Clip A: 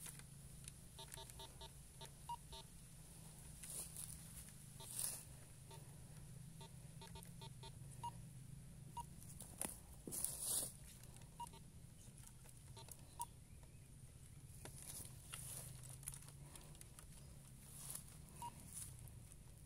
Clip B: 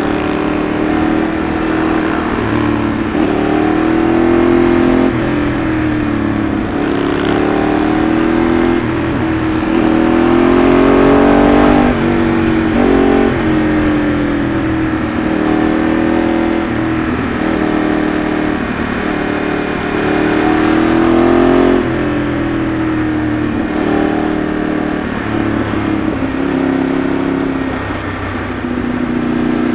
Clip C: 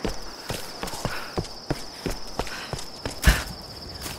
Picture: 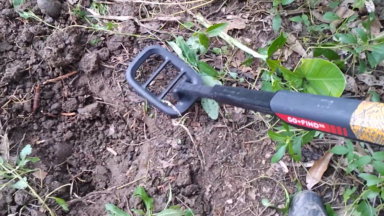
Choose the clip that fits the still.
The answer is A